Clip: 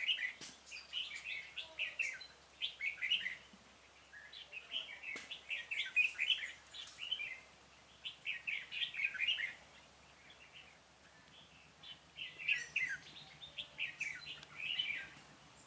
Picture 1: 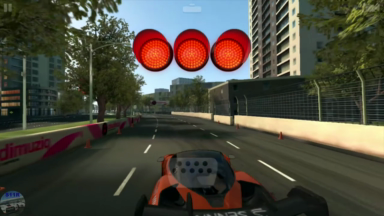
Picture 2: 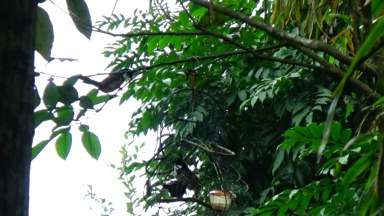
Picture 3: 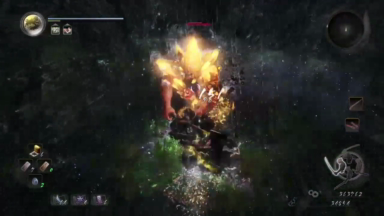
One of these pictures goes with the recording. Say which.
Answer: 2